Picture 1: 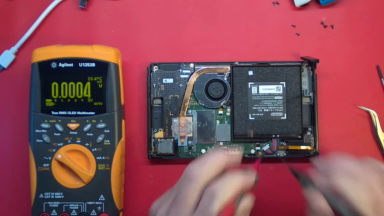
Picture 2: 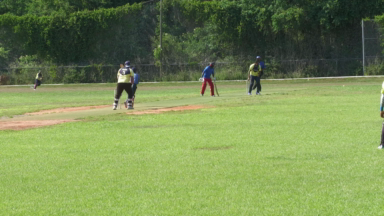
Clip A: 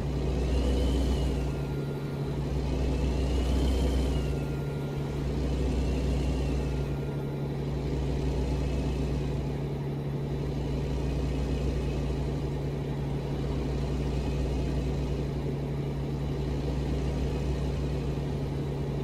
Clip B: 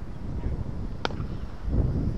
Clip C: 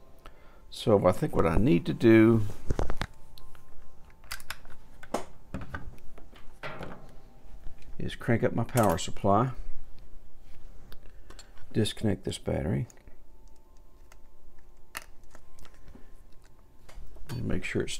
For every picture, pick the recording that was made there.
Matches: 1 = C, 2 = B